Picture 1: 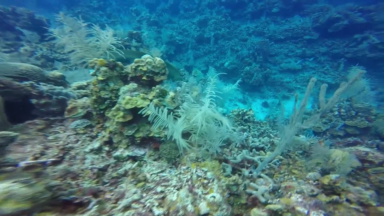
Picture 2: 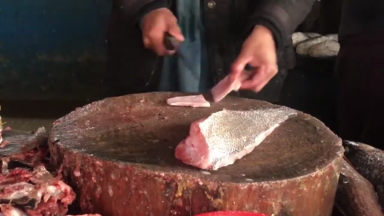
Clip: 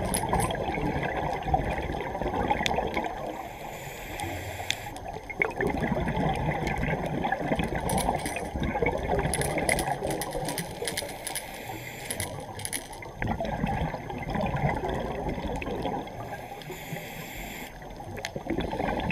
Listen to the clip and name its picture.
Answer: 1